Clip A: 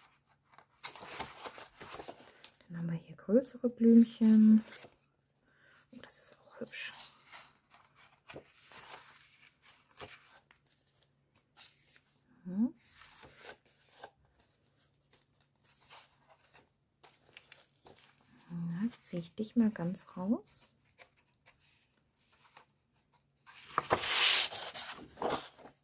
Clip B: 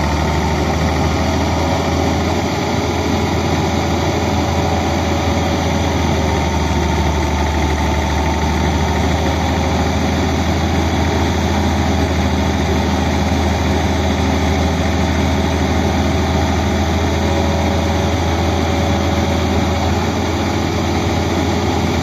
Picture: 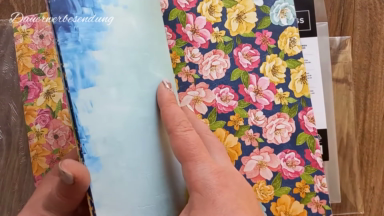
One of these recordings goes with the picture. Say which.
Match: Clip A